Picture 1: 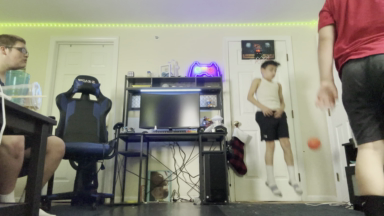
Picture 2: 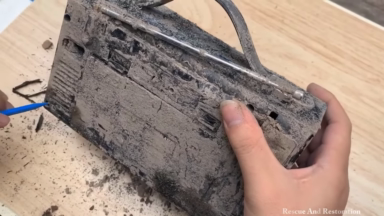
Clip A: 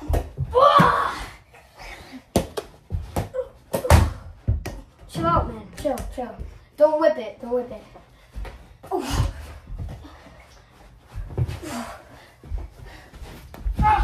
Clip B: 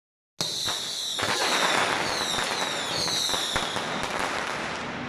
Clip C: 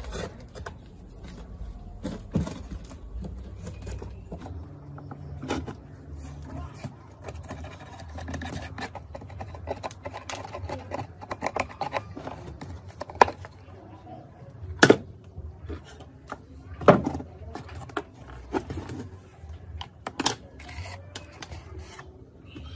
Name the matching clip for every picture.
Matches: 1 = A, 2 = C